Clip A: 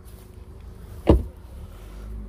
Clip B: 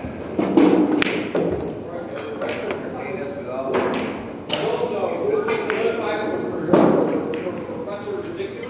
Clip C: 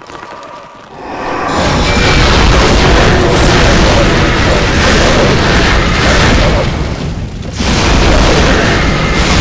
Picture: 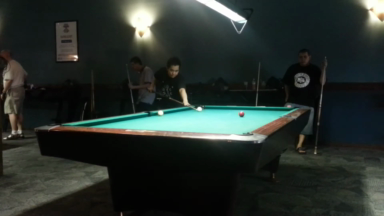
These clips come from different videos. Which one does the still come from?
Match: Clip B